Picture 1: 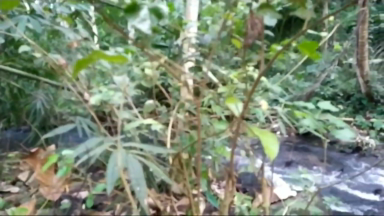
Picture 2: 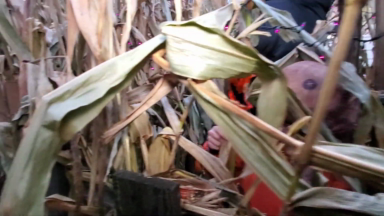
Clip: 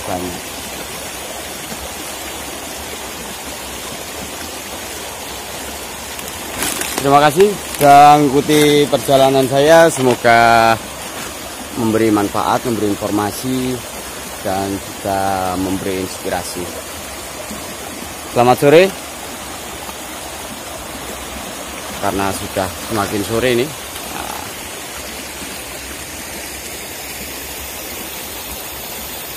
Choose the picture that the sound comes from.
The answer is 1